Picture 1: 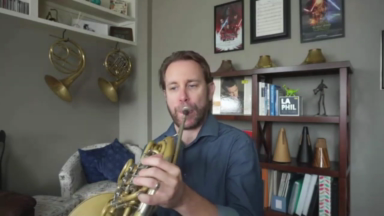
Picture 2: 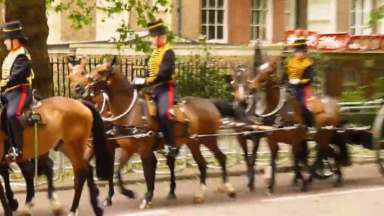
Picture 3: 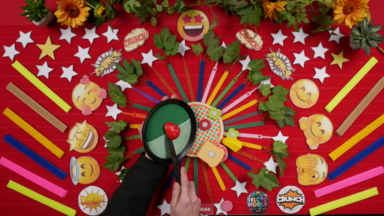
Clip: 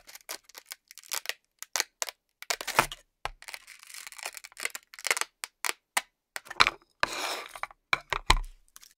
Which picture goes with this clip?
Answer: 3